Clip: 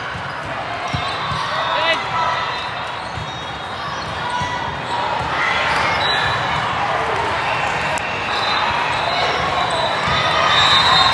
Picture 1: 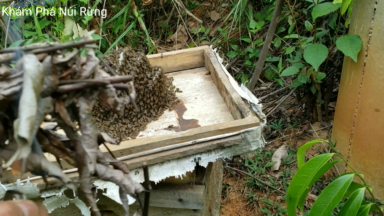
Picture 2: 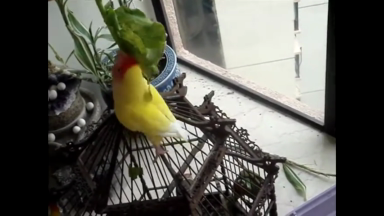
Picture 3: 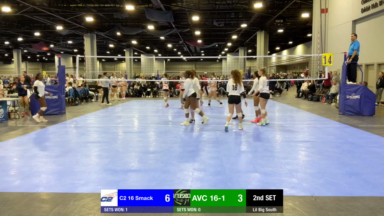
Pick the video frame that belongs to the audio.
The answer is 3